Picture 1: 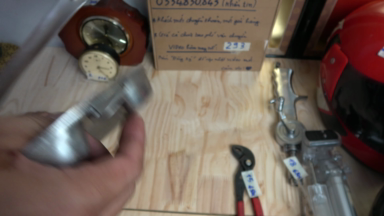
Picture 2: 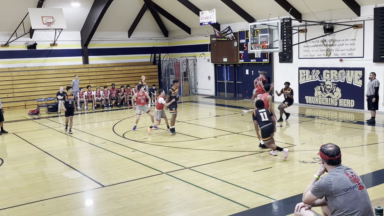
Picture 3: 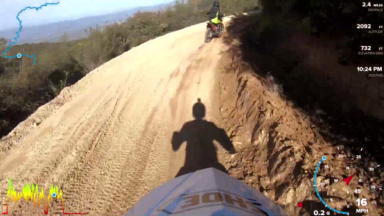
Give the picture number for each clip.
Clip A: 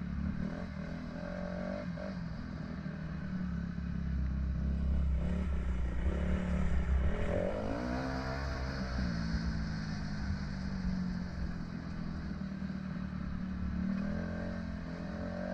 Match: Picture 3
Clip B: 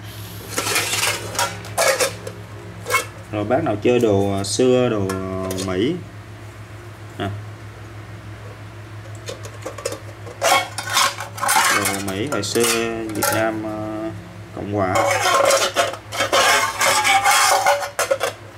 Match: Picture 1